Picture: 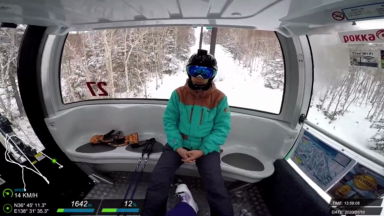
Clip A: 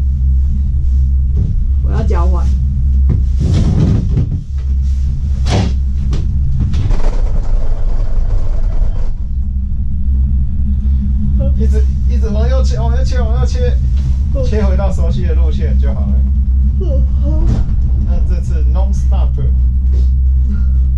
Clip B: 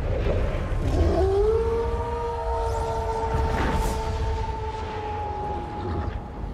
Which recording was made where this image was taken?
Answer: A